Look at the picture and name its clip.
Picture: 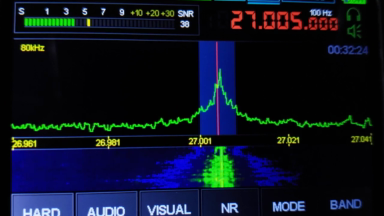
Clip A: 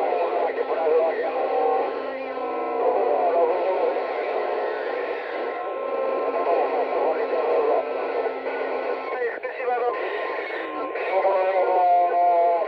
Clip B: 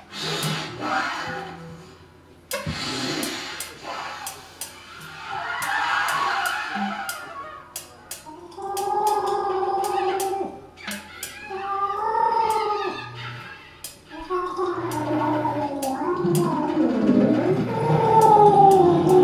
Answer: A